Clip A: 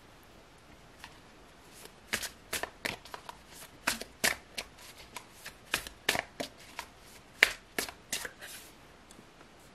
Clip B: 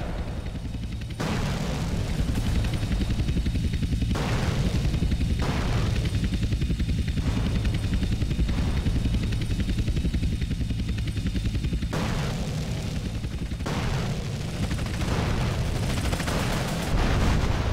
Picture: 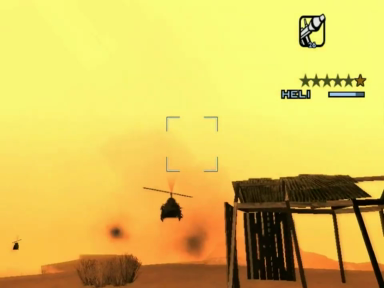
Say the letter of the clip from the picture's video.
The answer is B